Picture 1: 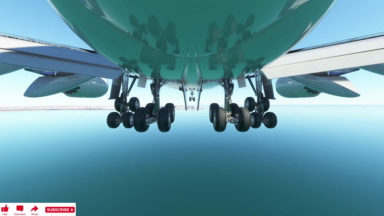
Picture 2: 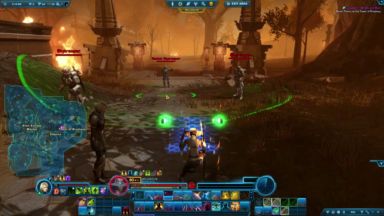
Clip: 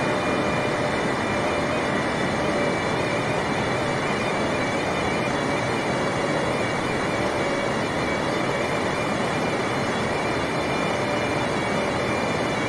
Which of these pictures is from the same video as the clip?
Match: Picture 1